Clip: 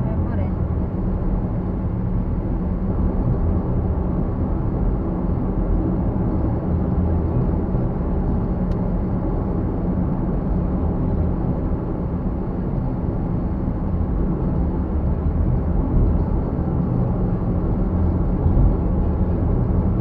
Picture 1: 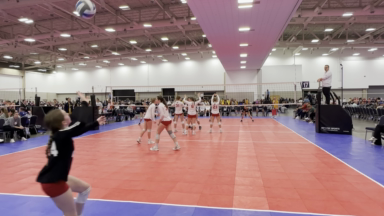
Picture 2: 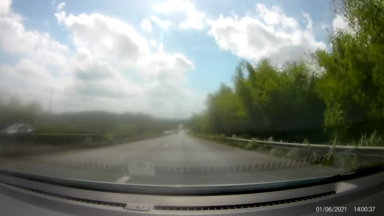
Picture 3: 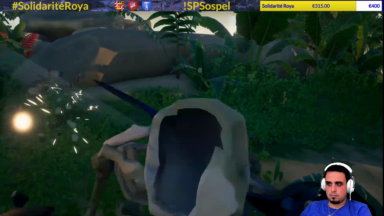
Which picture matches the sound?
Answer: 2